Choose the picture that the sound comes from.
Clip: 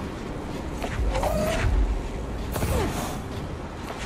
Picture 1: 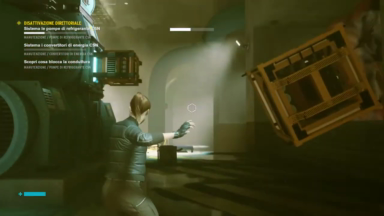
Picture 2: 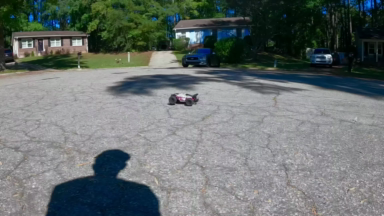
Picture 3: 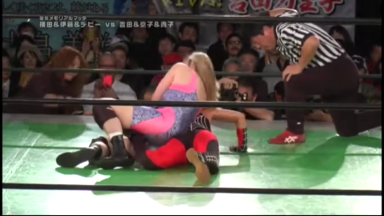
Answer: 1